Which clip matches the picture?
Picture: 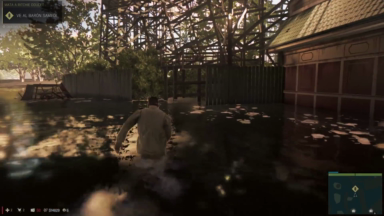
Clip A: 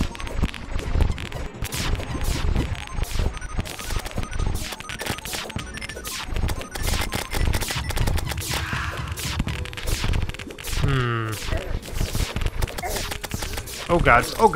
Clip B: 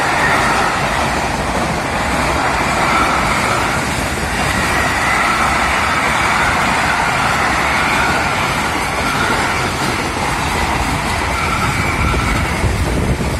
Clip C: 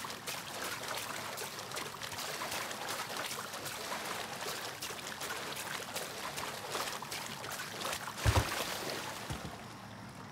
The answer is C